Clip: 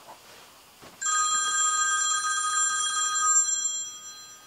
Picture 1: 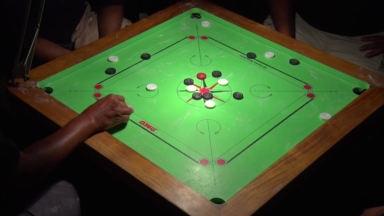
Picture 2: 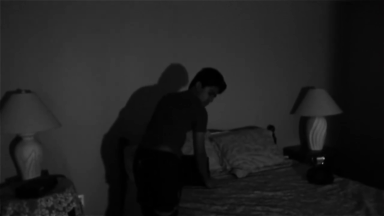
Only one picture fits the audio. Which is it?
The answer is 2